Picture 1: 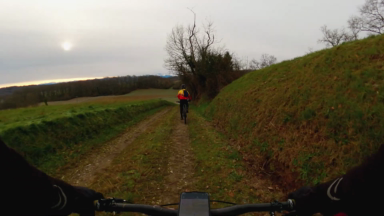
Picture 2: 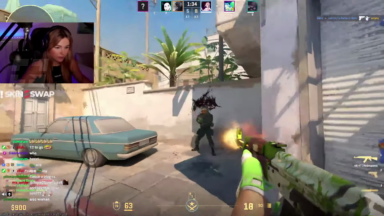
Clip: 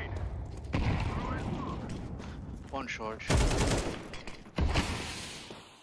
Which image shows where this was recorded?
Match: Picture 2